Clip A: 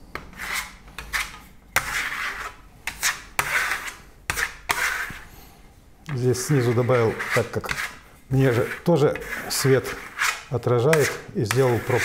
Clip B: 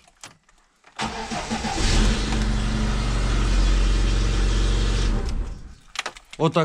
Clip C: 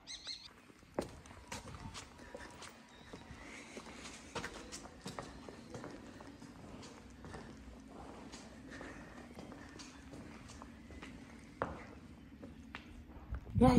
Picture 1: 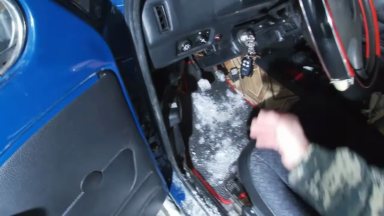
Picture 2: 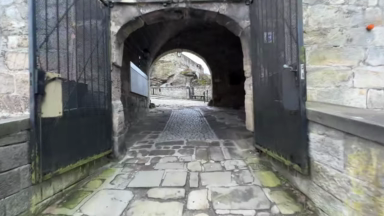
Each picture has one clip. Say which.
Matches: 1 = B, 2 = C